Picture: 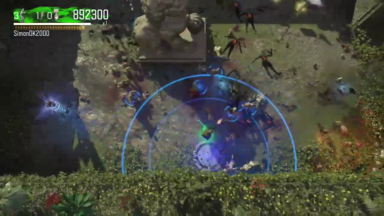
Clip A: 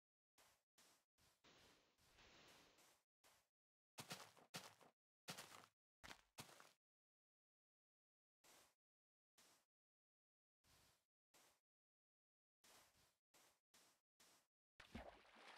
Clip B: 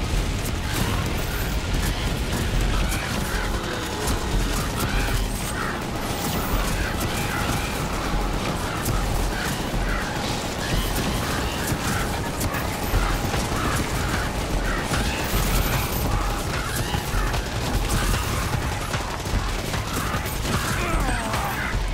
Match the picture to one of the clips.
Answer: B